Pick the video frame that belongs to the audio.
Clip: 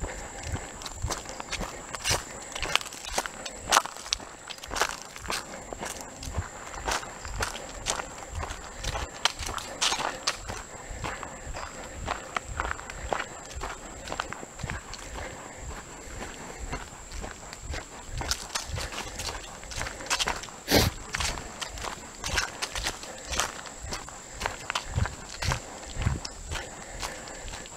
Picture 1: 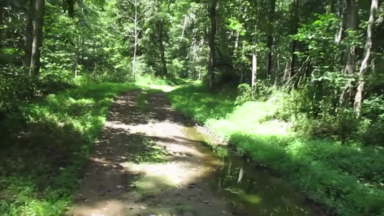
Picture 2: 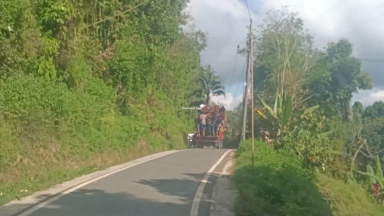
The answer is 1